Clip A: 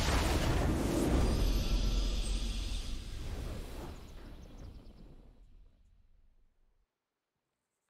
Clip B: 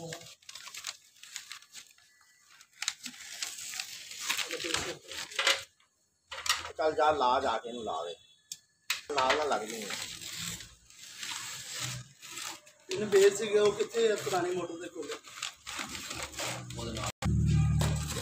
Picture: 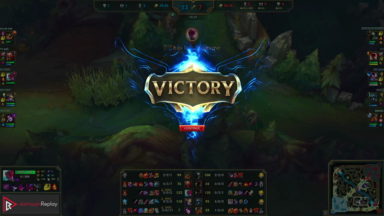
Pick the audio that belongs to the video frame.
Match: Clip A